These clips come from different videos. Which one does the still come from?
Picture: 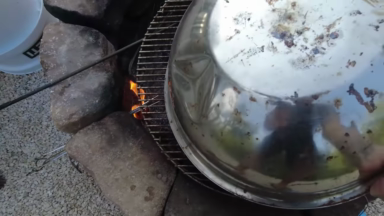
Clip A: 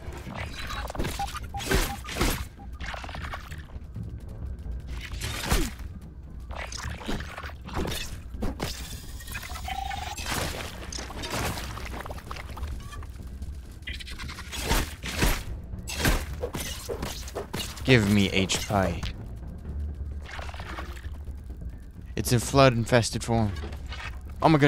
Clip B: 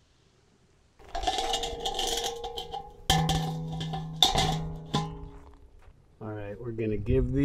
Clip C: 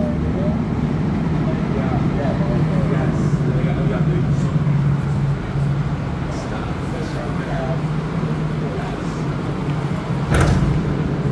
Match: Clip B